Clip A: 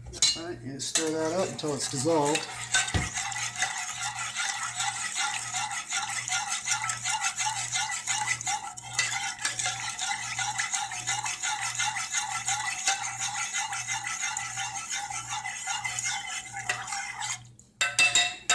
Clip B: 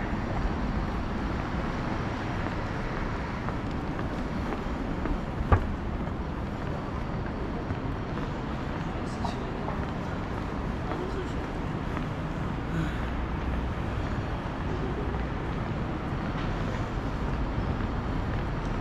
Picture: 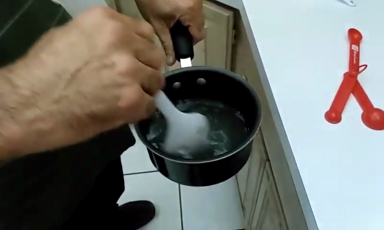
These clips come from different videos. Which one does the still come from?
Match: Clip A